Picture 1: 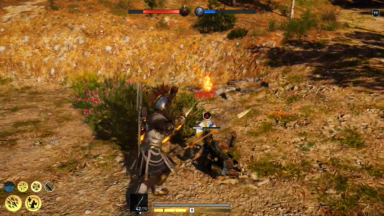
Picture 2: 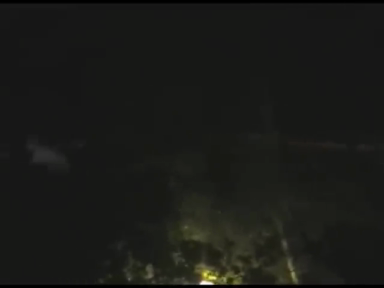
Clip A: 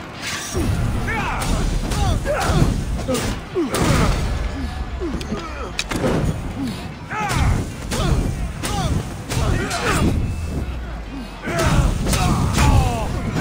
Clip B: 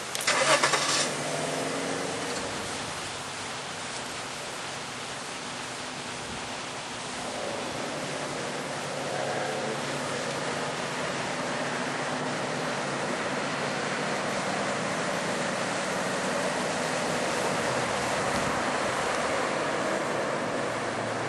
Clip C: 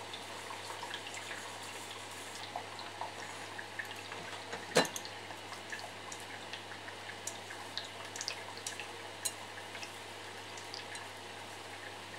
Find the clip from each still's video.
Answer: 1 A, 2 B